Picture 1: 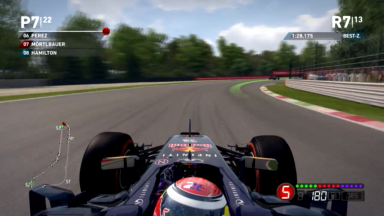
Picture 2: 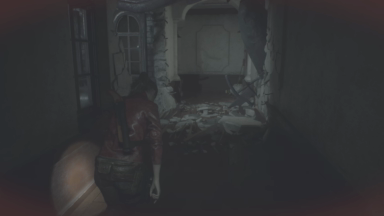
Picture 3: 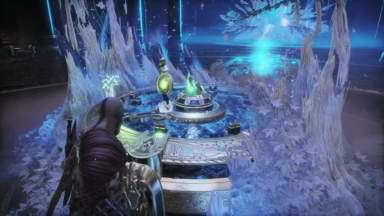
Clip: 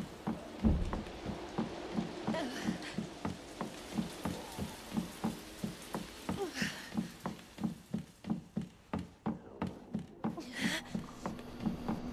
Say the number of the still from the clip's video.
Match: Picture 2